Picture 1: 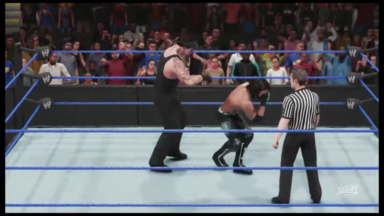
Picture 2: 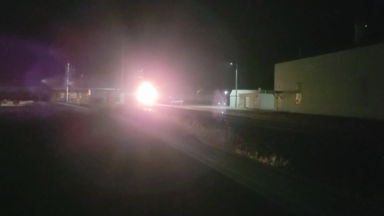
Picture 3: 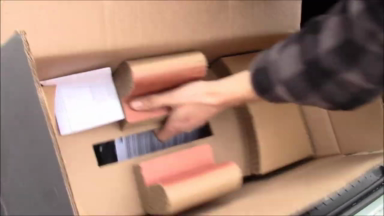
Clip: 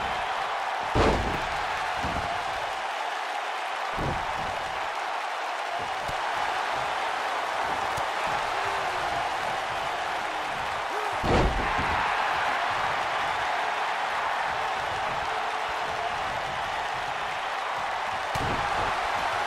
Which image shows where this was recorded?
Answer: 1